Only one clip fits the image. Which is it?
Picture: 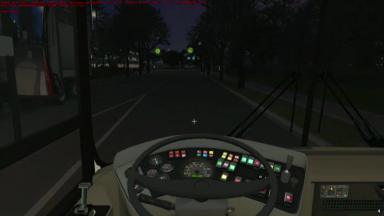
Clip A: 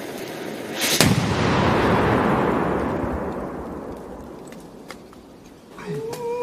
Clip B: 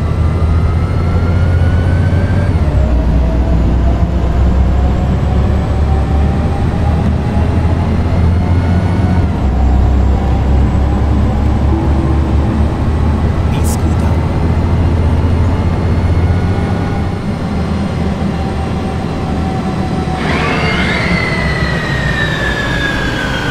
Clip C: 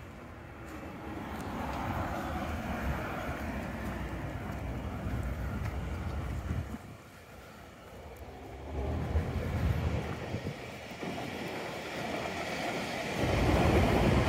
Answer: B